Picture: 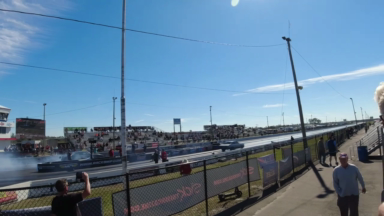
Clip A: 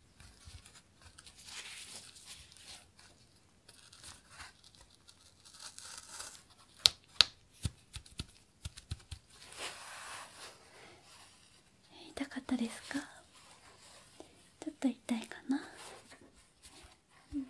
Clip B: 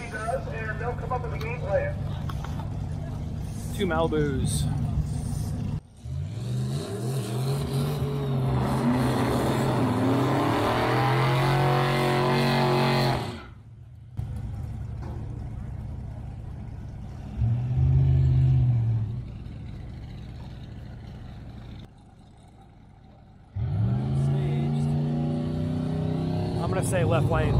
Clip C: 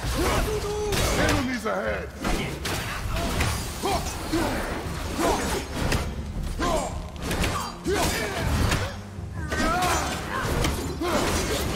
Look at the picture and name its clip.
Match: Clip B